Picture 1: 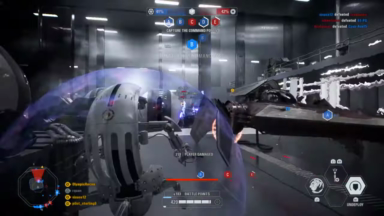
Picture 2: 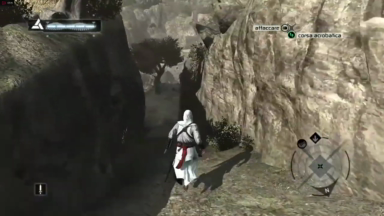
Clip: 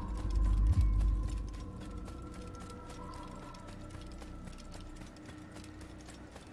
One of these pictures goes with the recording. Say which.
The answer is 2